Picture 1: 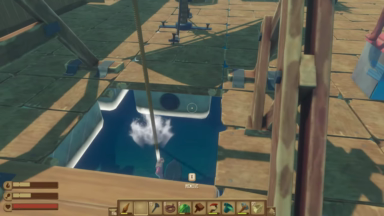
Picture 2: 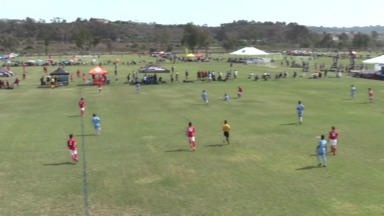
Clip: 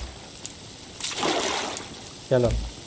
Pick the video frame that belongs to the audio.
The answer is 1